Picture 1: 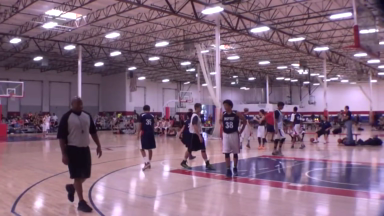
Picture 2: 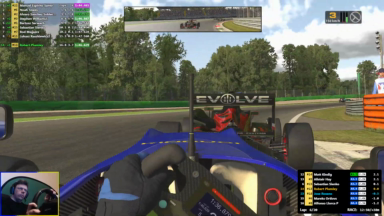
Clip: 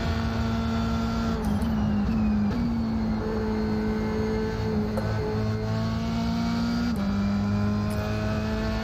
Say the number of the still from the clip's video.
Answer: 2